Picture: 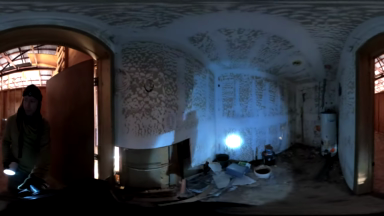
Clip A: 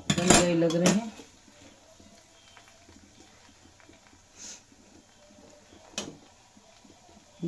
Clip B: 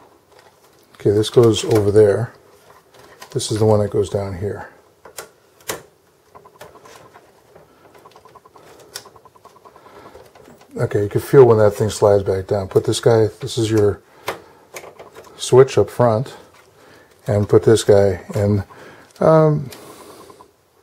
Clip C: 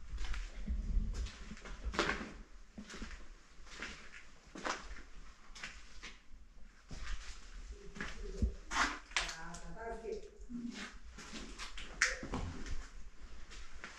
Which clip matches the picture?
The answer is C